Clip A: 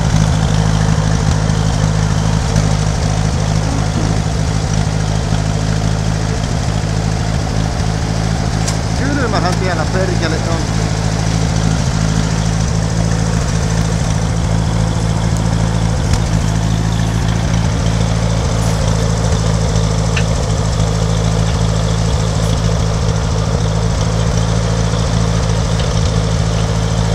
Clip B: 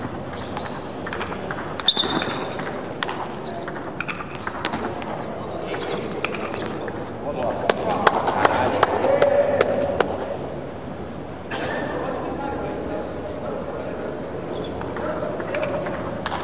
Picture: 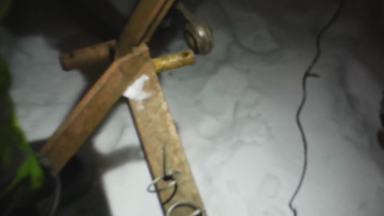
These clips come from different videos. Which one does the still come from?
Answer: A